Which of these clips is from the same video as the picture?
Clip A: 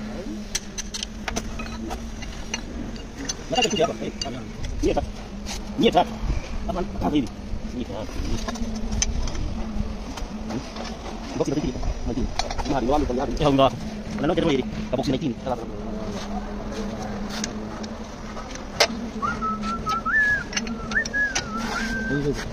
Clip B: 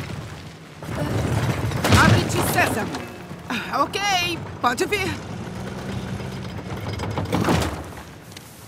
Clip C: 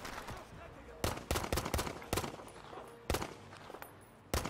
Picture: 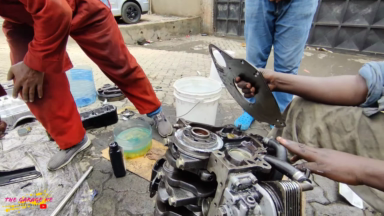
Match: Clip A